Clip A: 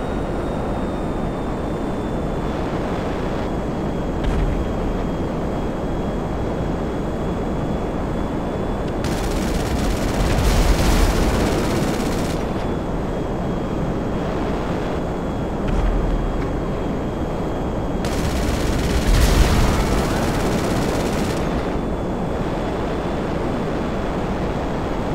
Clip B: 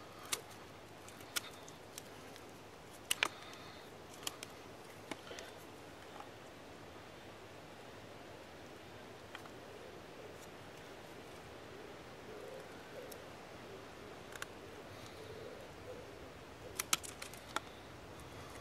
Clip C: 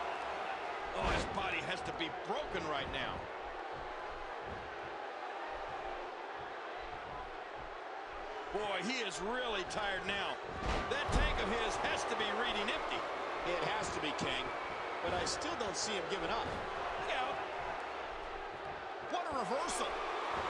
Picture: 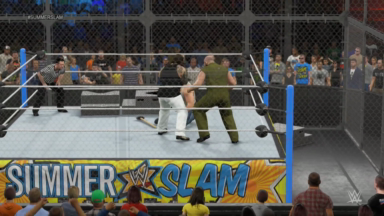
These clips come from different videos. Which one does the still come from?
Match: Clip C